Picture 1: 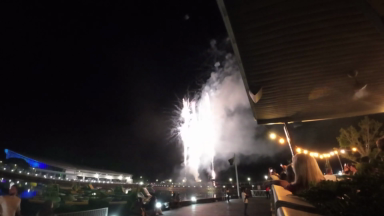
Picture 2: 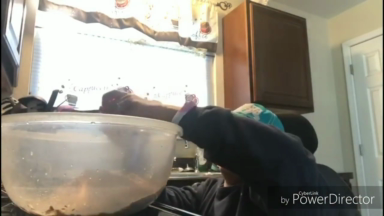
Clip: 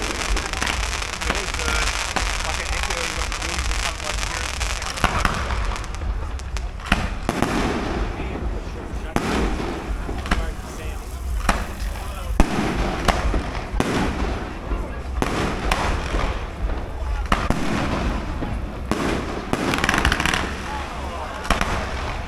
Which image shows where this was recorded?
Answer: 1